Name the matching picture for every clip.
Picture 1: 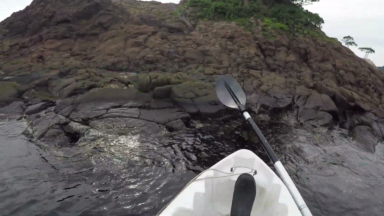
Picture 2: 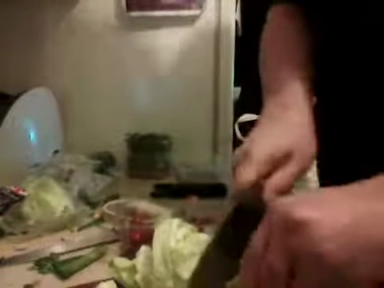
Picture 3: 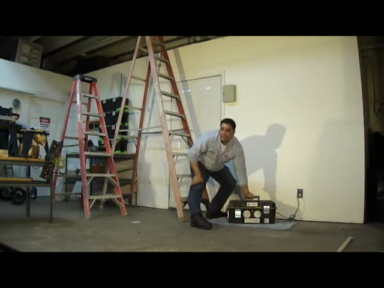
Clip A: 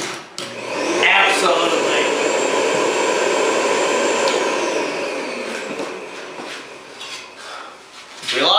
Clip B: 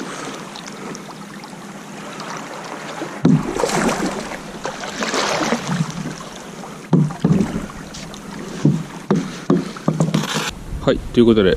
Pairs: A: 3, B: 1